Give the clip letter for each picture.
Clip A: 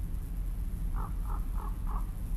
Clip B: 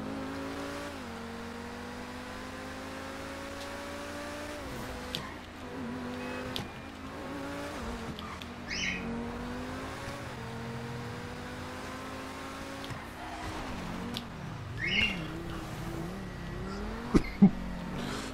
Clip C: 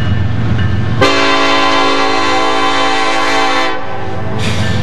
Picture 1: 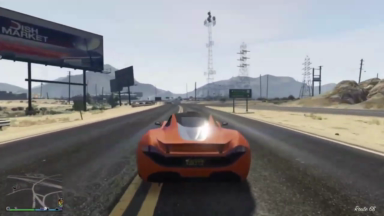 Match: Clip B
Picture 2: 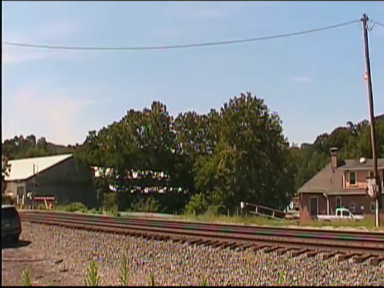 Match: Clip C